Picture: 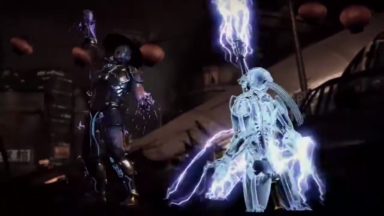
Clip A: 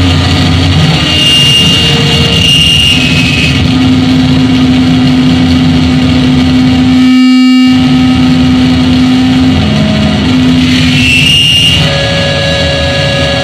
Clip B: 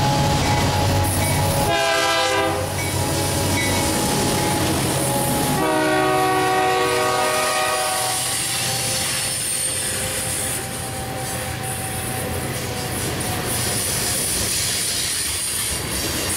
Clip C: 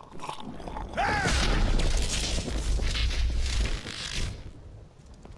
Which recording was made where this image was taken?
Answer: C